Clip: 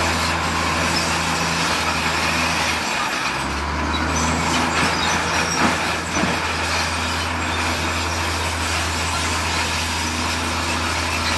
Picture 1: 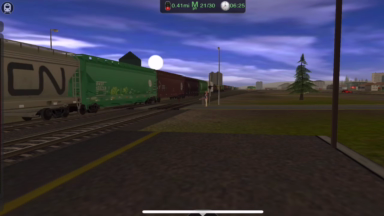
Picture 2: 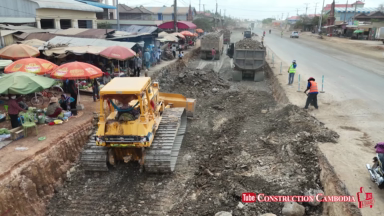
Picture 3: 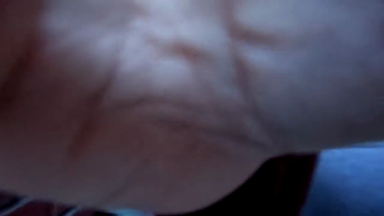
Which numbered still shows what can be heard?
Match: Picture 2